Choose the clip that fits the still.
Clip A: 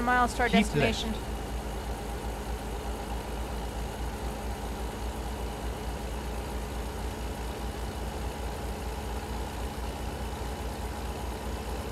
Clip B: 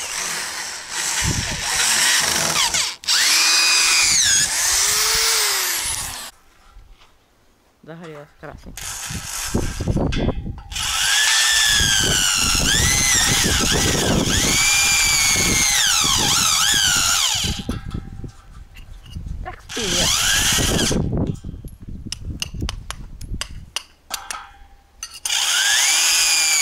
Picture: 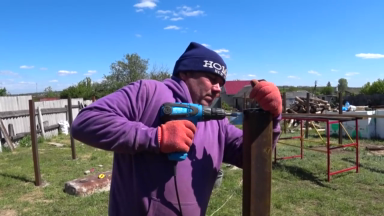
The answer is B